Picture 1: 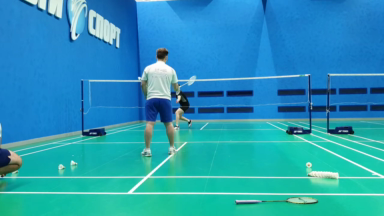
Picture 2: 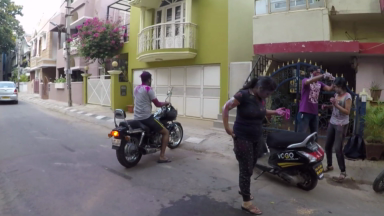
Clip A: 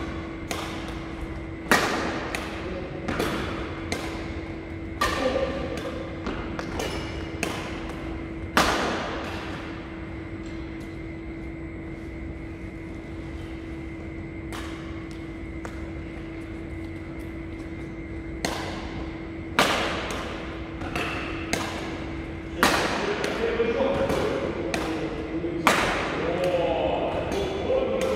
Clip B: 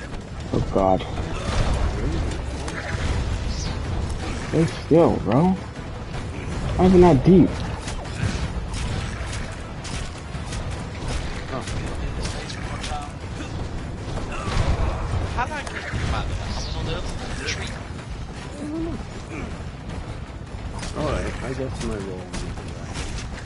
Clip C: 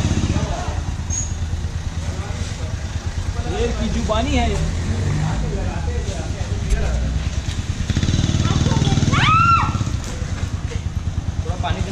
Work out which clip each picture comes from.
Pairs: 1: A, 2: C